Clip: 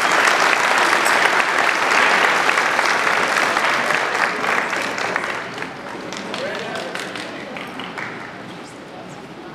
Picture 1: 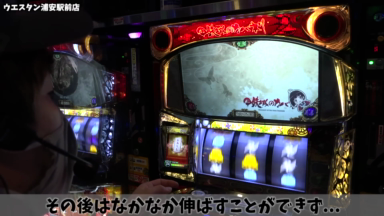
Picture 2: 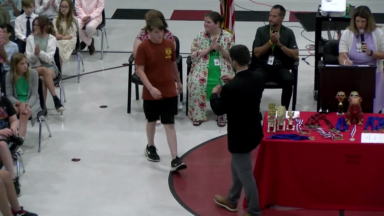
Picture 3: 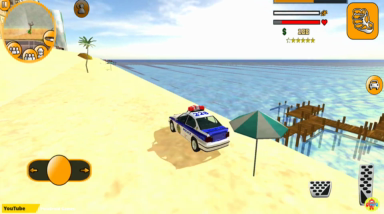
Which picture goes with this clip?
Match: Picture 2